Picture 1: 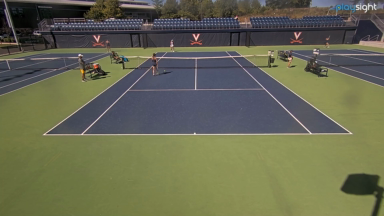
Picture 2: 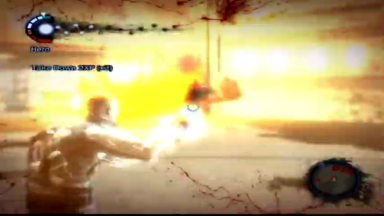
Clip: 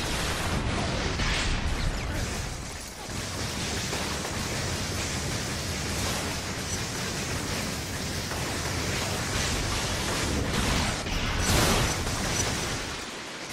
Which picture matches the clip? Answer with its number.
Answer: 2